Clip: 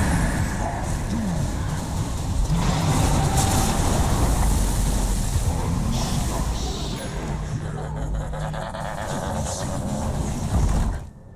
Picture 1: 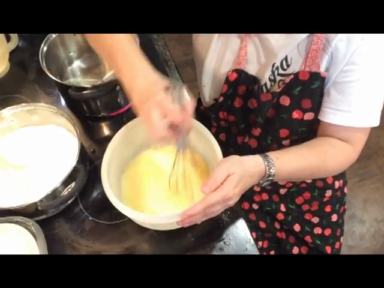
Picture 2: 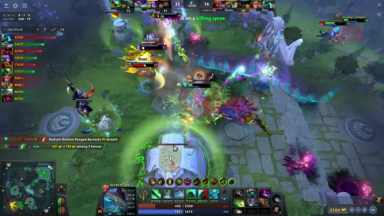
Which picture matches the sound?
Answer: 2